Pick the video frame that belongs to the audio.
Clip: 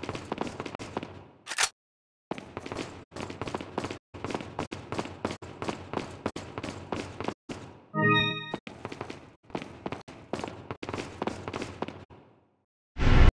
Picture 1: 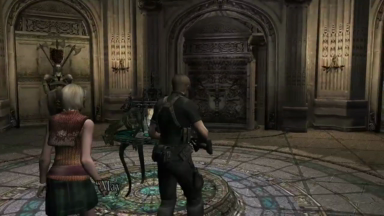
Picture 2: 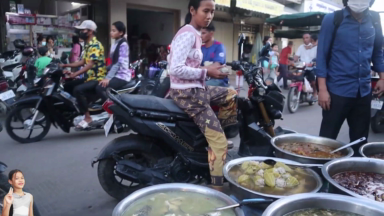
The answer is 1